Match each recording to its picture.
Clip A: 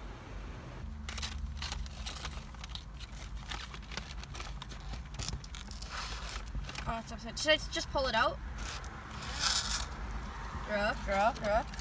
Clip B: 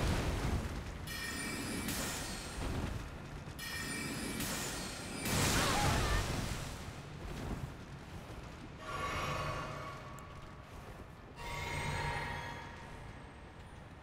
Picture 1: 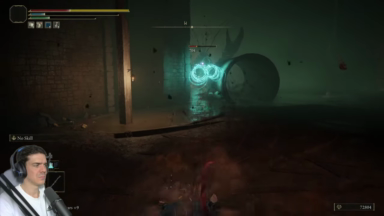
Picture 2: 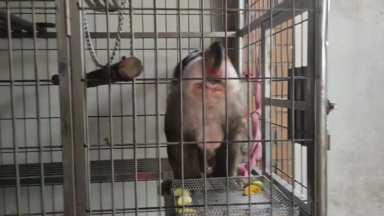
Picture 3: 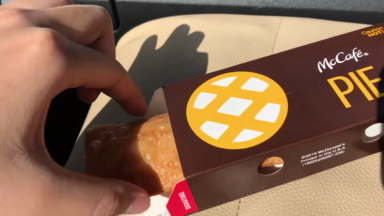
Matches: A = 3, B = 1